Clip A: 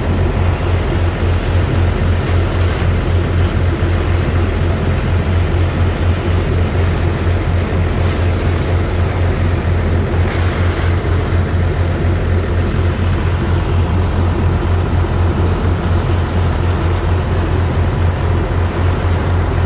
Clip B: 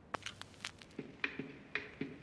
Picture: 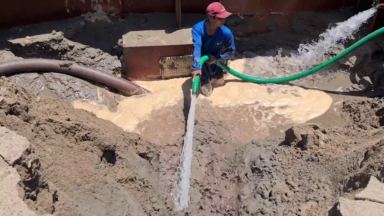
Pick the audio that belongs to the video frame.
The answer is A